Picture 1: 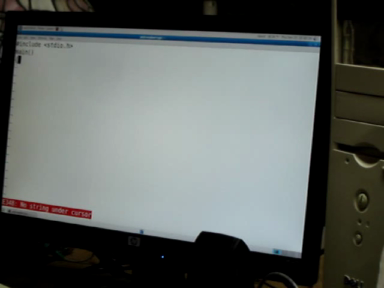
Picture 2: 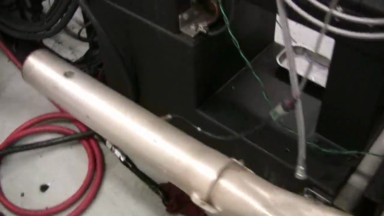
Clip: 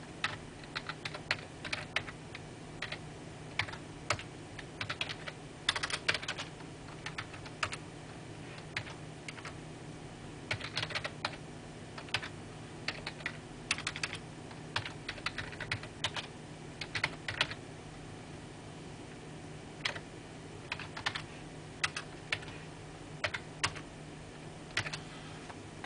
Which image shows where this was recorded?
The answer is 1